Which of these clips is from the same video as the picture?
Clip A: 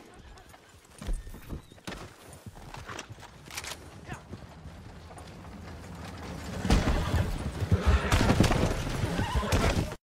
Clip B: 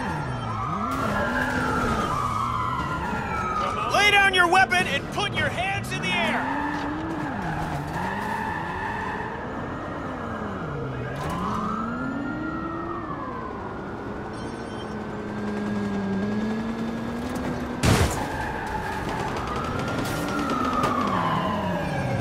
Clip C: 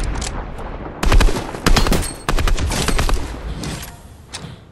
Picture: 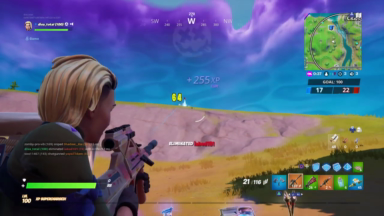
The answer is C